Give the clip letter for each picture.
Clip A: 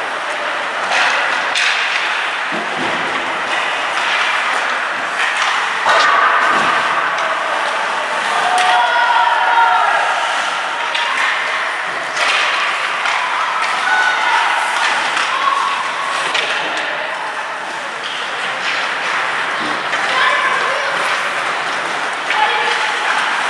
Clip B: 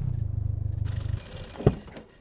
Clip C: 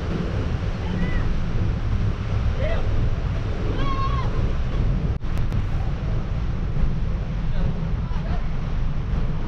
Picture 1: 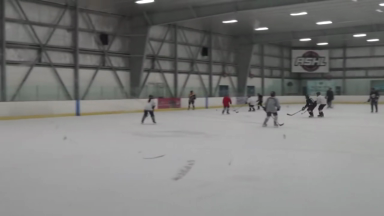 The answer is A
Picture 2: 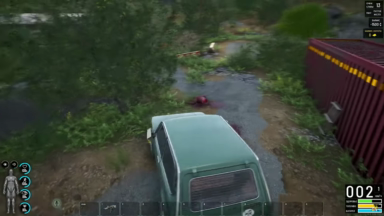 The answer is B